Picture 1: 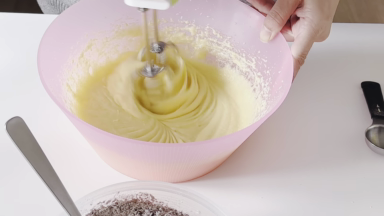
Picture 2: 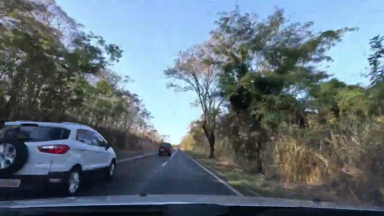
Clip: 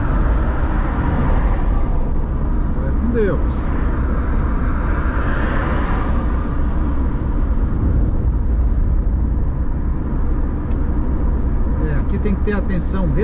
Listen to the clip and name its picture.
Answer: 2